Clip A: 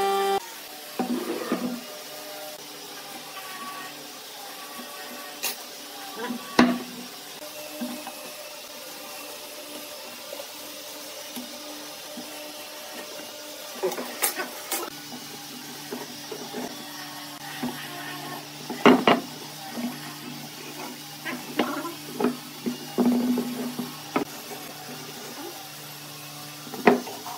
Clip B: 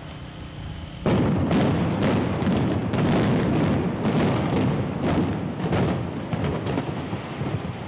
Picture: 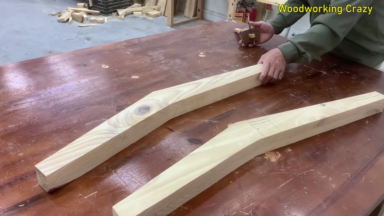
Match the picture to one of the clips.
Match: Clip A